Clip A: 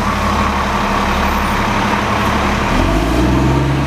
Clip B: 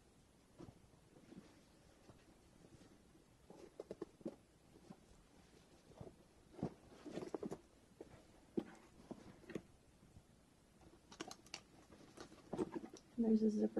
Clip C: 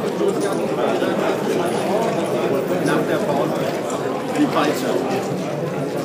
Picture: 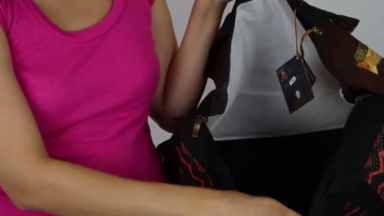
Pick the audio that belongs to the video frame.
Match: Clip B